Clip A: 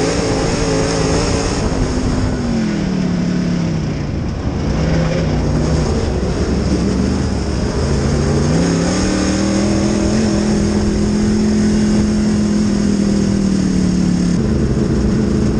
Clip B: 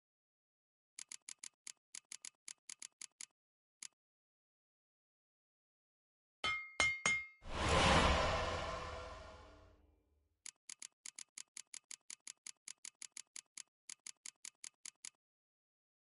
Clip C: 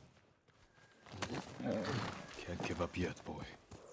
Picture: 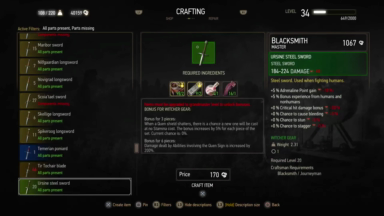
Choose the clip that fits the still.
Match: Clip B